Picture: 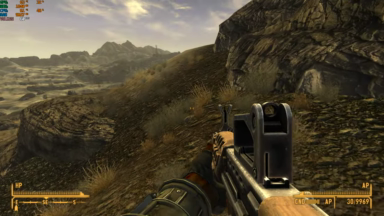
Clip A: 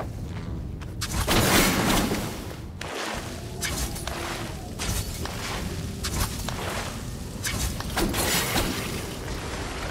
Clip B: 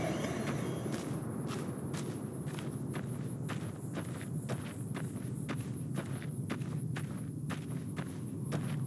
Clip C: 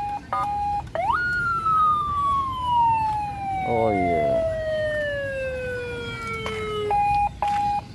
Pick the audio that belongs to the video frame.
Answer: B